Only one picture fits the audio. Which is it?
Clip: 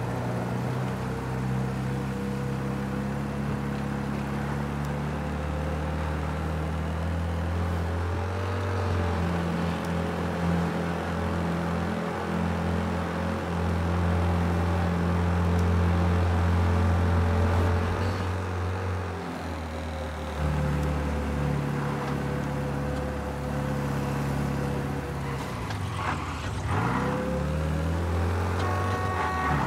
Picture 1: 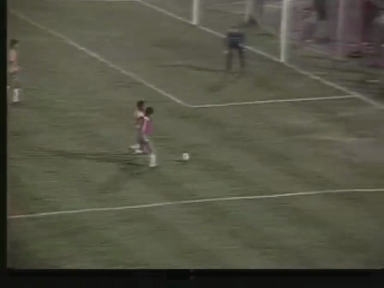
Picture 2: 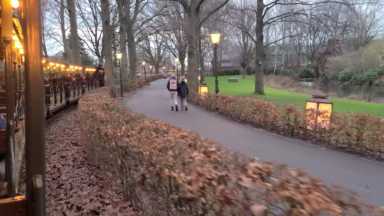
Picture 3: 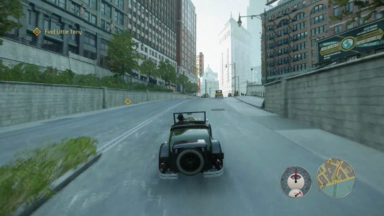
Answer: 3